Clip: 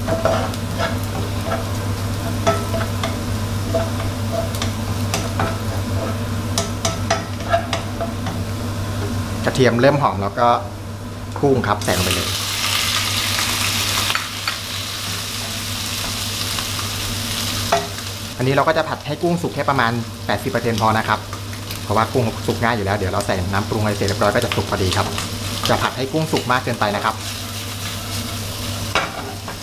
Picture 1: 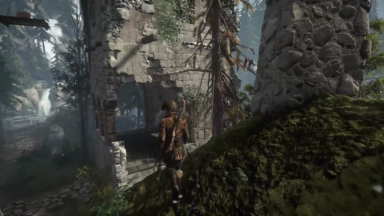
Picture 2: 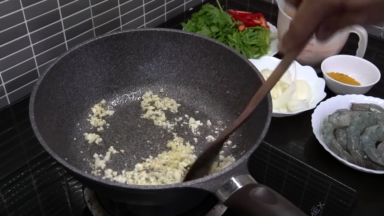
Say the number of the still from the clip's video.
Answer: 2